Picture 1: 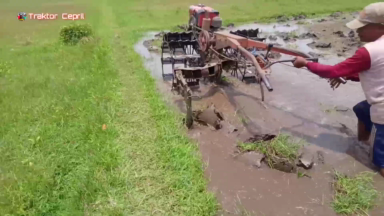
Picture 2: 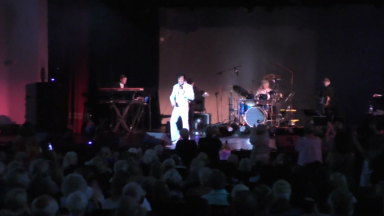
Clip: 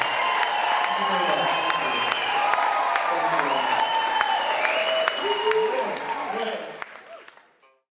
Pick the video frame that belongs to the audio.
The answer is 2